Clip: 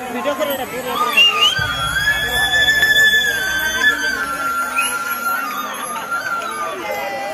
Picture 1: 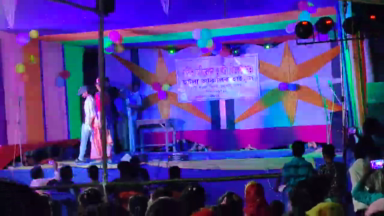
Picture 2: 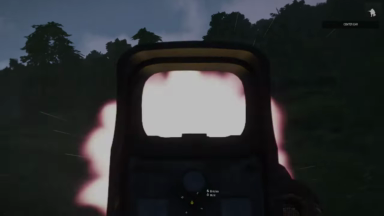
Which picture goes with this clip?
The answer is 1